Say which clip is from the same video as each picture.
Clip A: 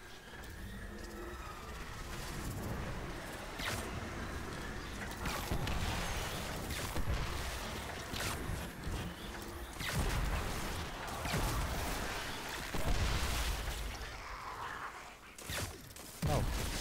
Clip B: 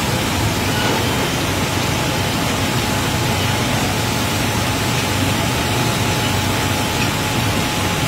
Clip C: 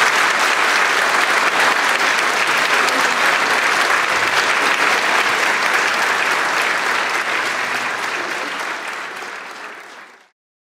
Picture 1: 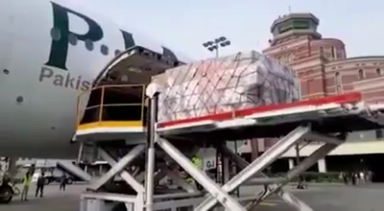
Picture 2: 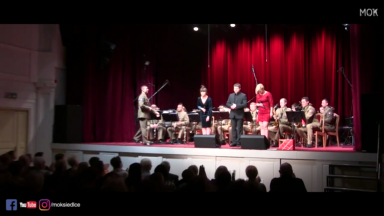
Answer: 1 B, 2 C